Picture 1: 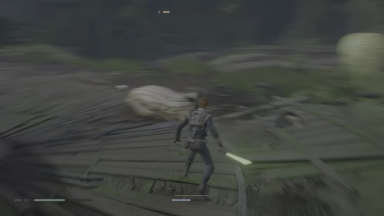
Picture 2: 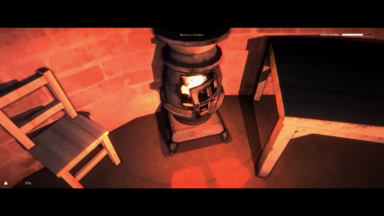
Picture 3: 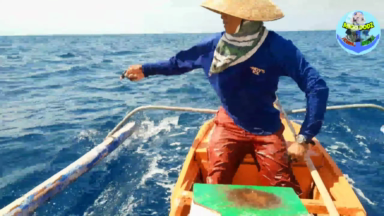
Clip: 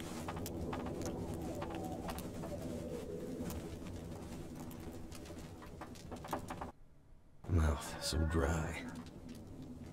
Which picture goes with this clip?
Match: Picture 2